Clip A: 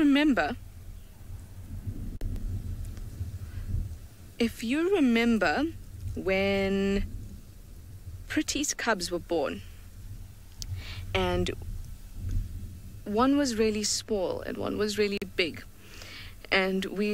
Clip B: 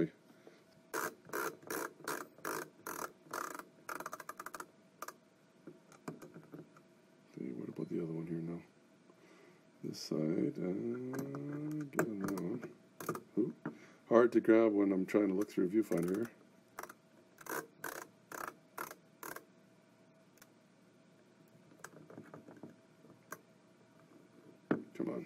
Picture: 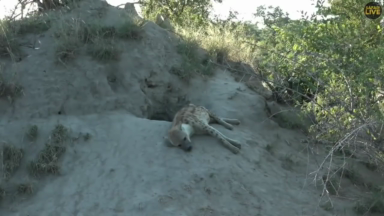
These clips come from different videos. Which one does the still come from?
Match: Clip A